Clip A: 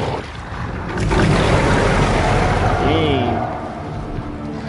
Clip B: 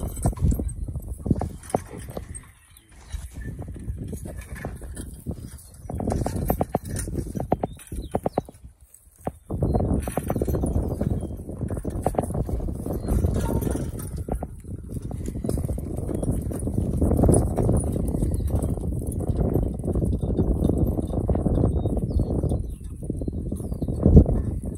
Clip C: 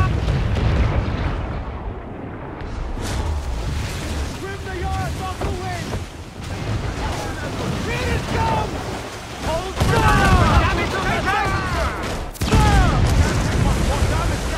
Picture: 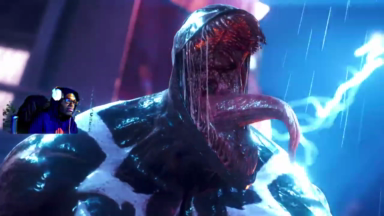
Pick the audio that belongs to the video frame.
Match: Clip A